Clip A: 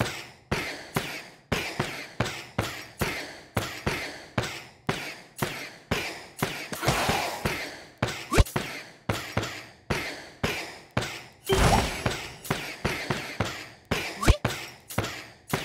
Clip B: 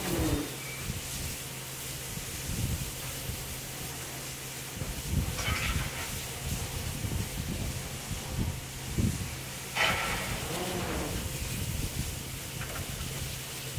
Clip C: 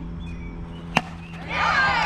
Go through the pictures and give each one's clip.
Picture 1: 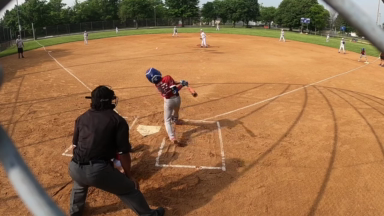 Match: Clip C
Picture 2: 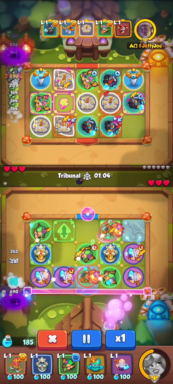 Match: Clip A